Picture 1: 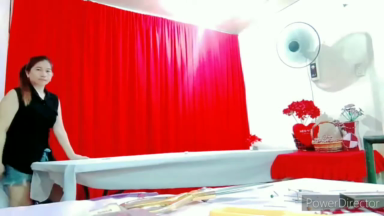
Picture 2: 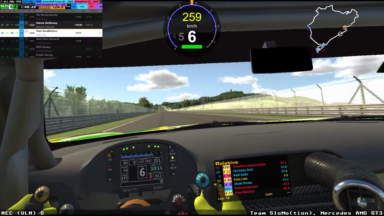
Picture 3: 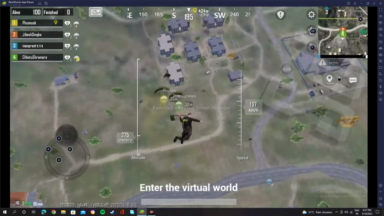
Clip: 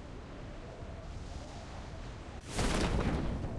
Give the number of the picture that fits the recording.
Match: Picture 3